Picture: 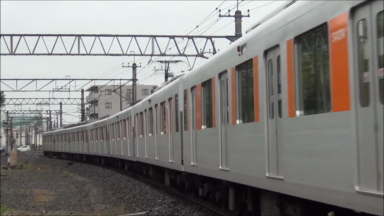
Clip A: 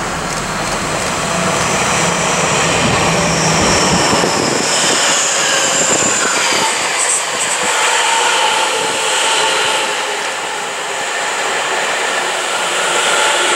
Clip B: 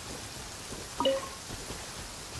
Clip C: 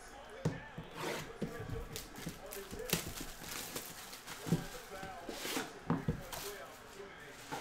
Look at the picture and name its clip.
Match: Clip A